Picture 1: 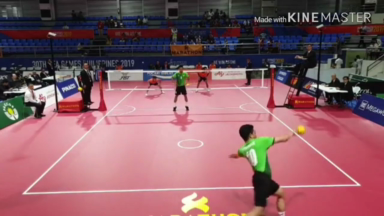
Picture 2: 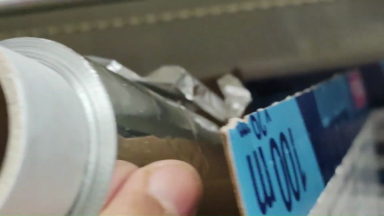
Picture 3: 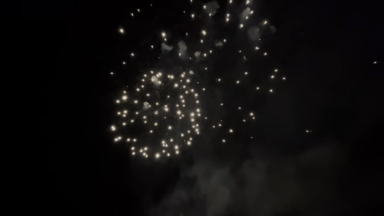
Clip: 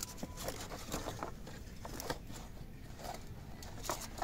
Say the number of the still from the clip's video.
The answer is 2